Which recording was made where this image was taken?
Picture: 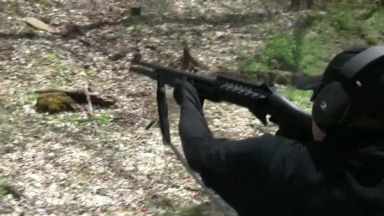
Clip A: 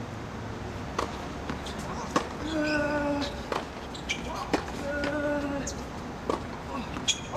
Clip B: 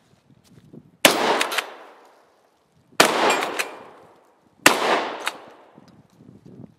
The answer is B